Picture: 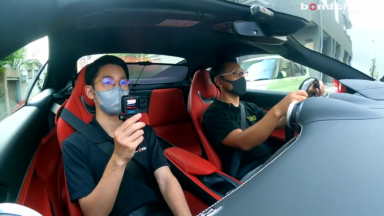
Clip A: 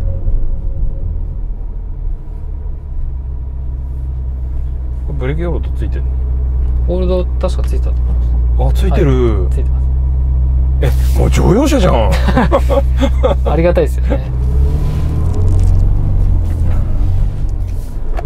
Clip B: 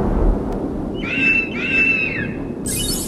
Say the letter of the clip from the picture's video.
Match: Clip A